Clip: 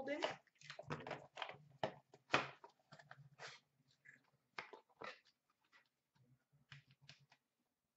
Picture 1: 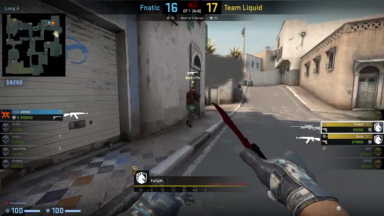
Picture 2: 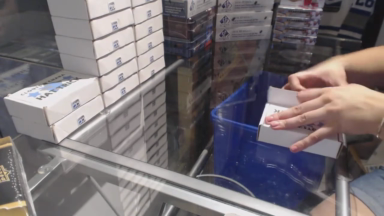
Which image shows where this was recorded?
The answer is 2